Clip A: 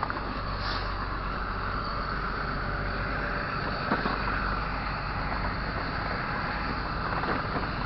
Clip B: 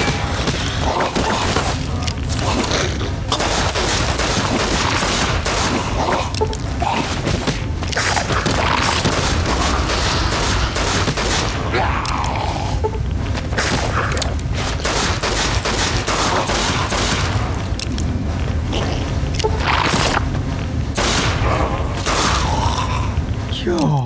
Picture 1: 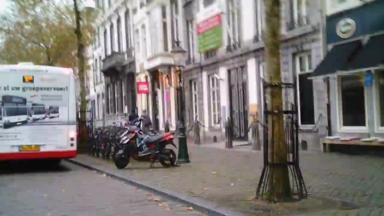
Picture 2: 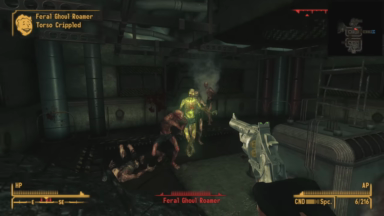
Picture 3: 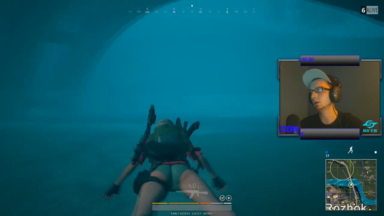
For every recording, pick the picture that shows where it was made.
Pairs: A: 1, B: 2